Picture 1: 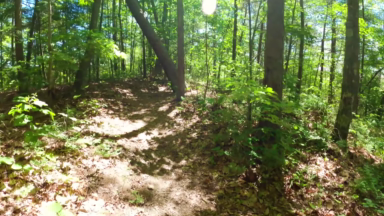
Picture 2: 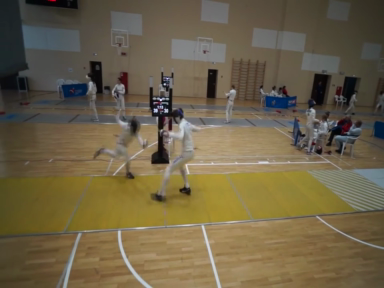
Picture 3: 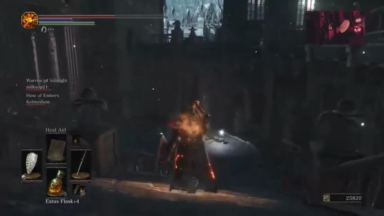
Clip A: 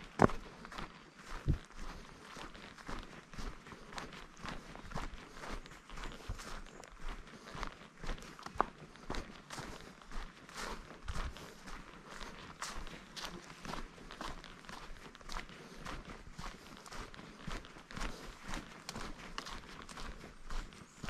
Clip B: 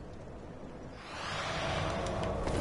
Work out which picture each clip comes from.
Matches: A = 1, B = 3